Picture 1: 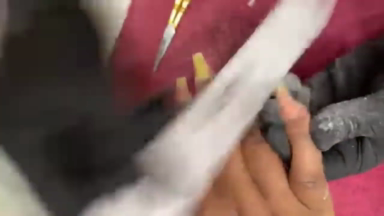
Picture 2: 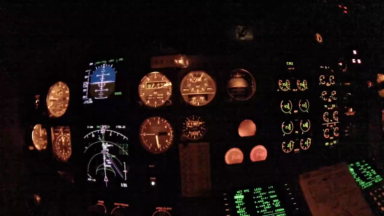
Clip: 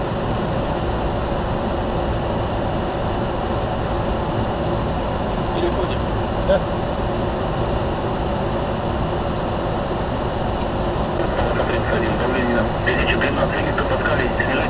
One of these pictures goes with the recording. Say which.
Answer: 2